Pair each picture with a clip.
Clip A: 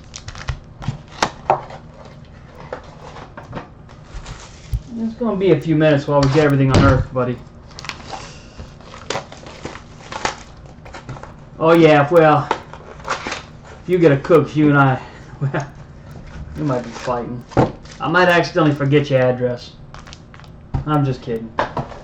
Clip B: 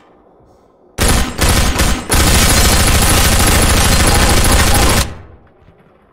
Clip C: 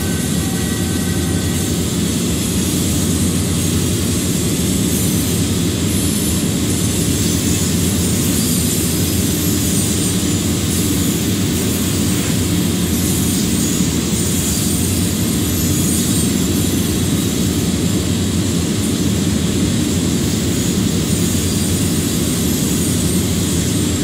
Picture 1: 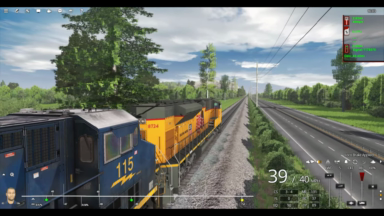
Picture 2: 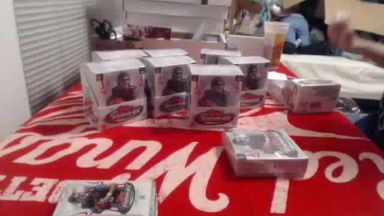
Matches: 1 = C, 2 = A